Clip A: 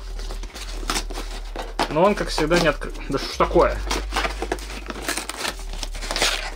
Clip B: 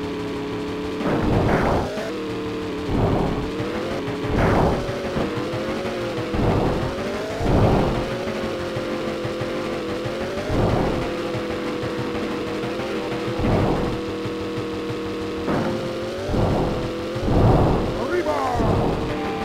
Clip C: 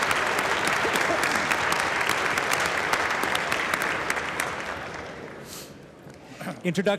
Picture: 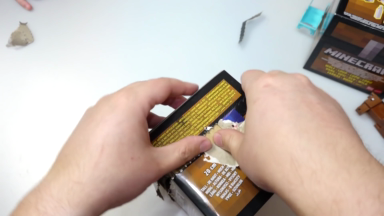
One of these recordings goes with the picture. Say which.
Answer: A